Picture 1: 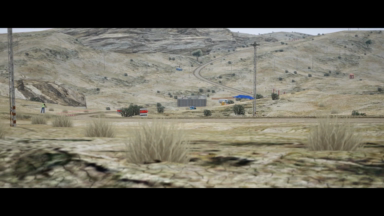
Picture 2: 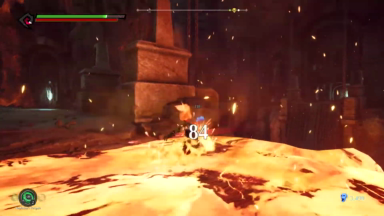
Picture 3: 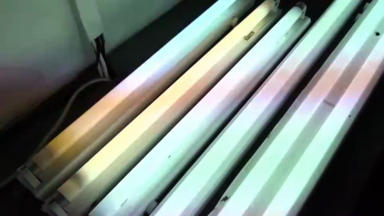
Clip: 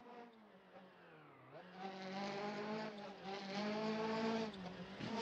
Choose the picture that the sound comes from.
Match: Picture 1